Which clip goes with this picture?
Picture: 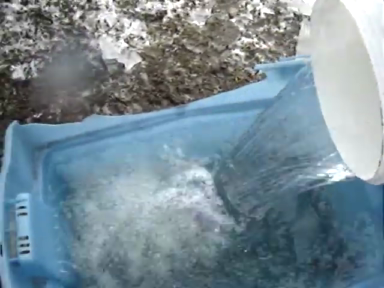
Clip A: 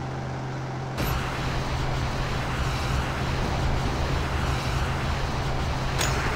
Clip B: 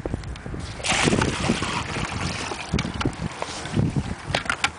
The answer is B